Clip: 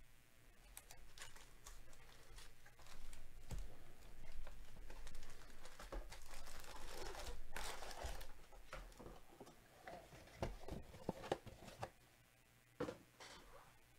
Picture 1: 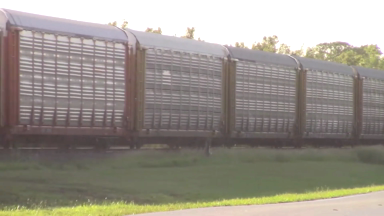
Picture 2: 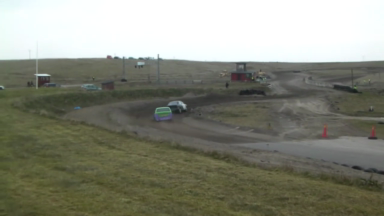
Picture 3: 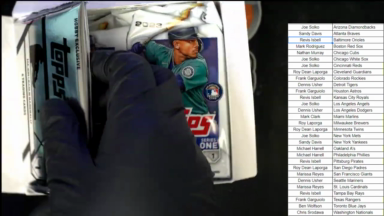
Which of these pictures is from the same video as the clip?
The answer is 3